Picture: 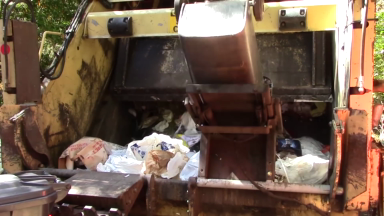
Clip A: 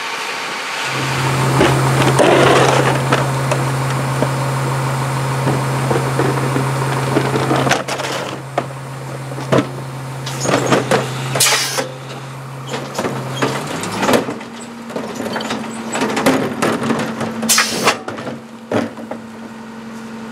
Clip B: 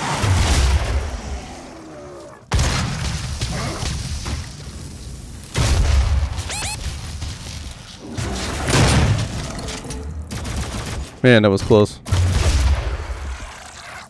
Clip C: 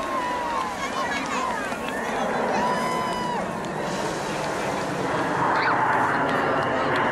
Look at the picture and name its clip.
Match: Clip A